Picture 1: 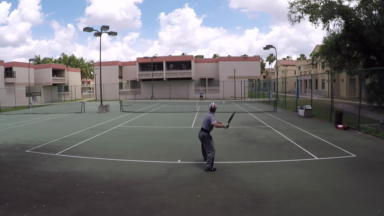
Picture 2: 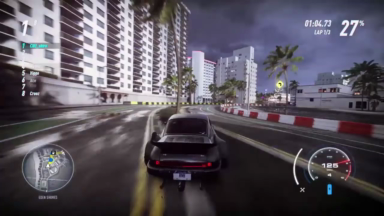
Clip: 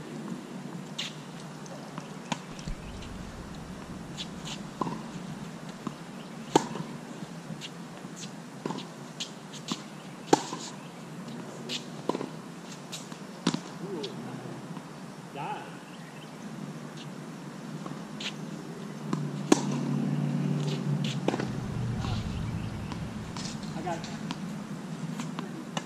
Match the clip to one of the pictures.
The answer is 1